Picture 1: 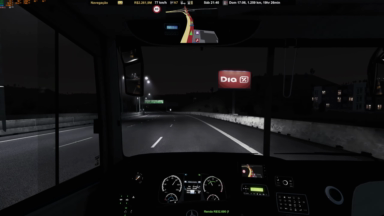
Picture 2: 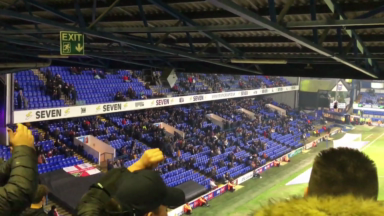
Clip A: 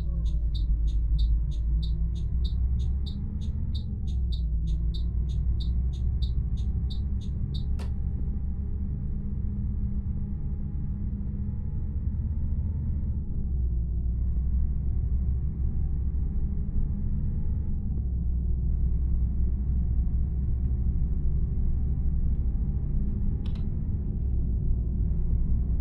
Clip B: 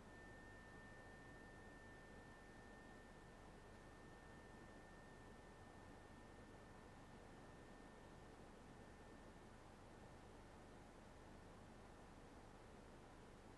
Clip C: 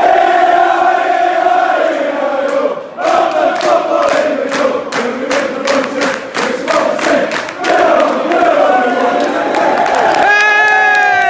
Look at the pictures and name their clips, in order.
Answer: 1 A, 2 C